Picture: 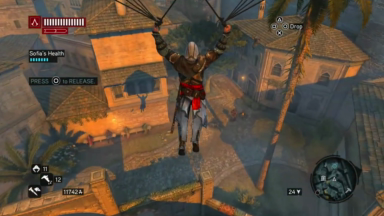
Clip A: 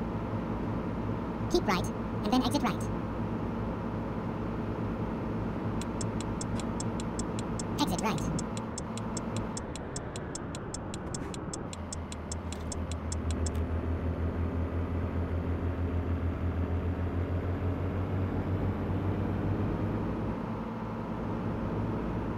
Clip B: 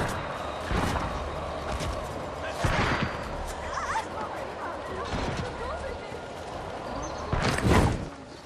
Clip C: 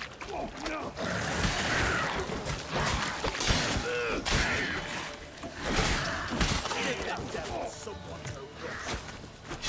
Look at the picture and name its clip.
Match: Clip B